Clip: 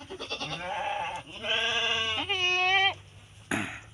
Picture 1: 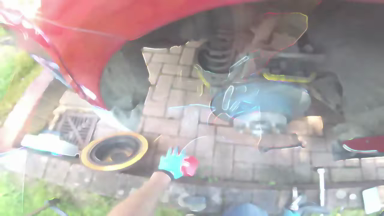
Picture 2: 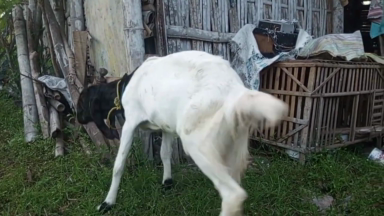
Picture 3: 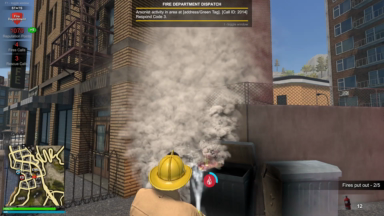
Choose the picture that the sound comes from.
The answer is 2